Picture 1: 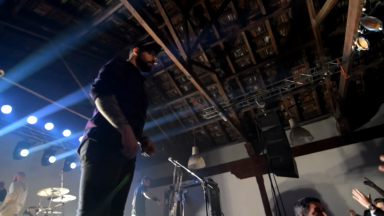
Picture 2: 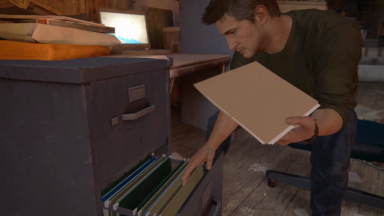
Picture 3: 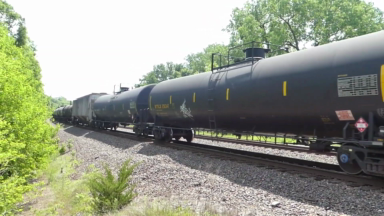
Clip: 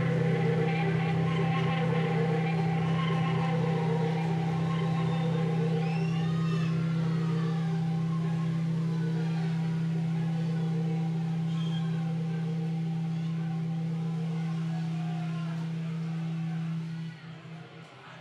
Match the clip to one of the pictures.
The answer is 1